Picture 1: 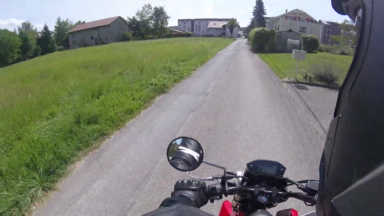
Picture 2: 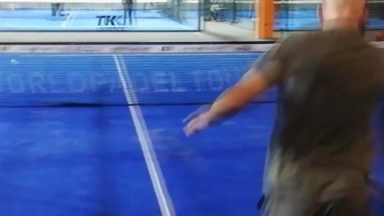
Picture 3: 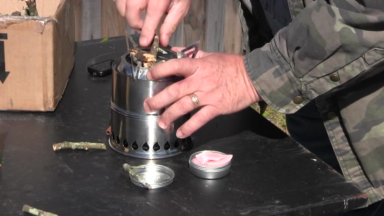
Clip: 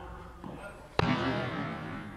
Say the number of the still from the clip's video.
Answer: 2